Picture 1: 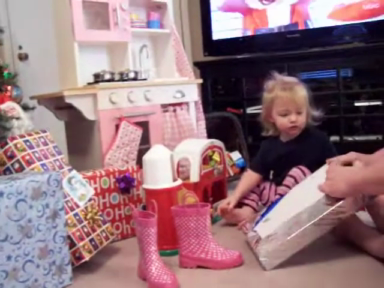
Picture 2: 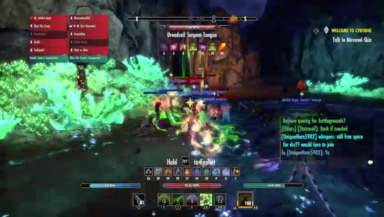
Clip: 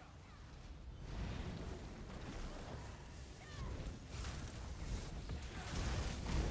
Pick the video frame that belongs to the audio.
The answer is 2